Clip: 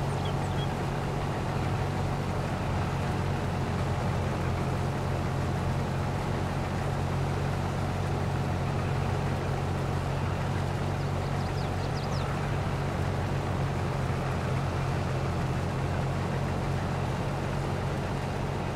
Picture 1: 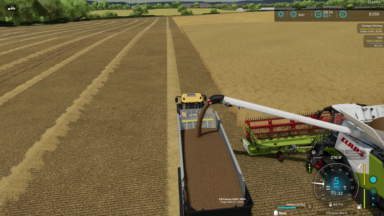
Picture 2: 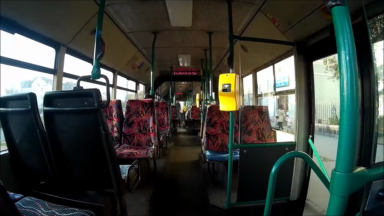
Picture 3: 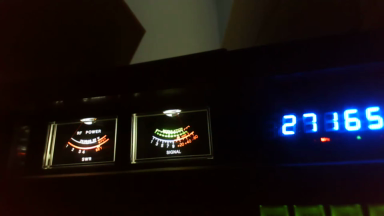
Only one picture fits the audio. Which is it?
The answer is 1